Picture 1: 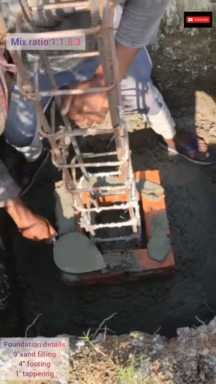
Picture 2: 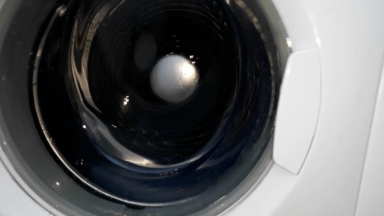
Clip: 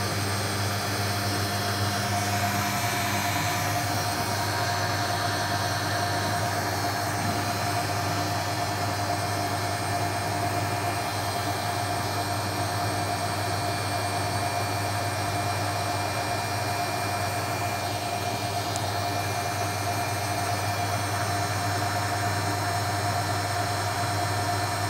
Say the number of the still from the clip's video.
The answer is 2